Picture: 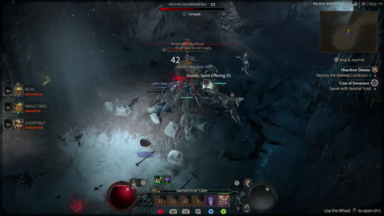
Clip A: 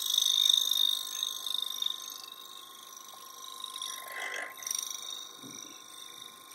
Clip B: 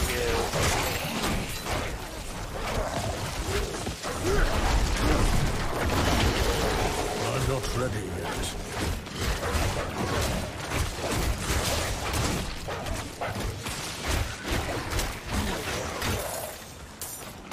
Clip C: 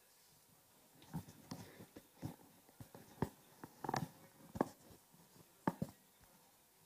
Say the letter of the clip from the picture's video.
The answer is B